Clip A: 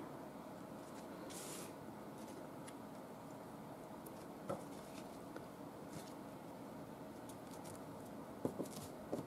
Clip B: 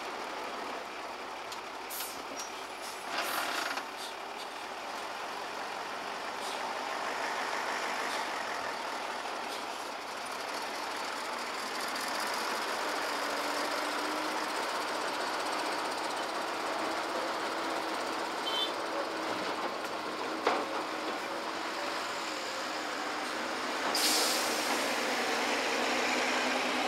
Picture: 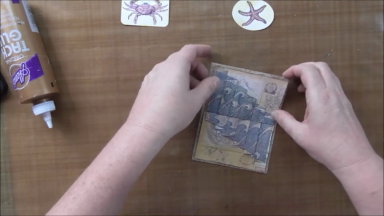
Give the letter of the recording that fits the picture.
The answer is A